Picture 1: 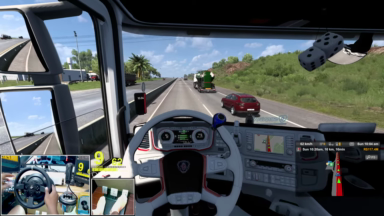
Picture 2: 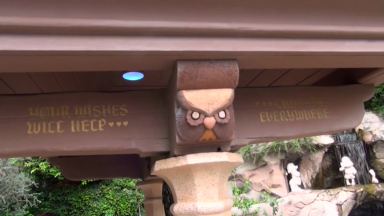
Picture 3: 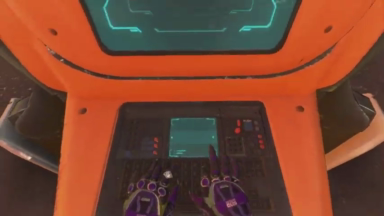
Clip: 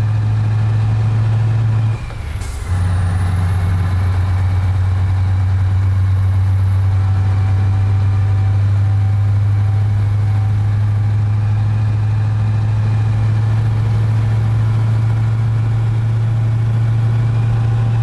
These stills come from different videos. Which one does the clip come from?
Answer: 1